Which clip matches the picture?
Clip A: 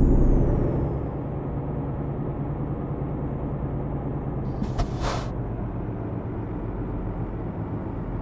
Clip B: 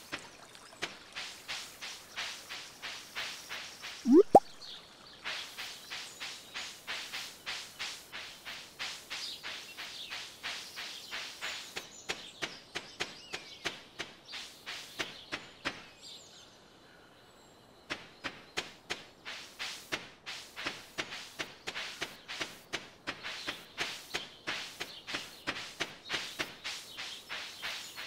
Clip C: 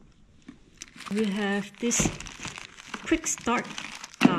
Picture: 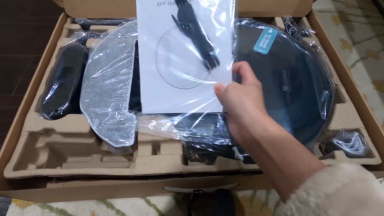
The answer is C